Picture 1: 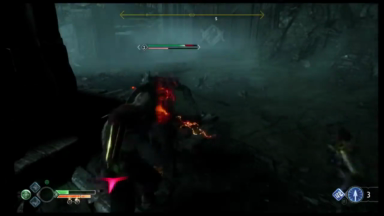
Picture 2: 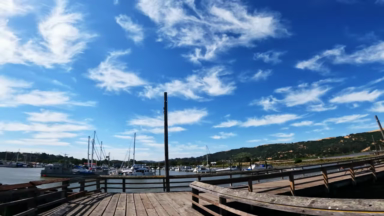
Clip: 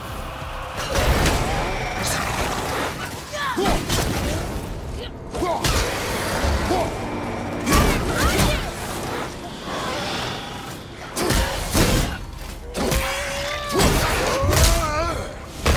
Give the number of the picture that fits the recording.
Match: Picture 1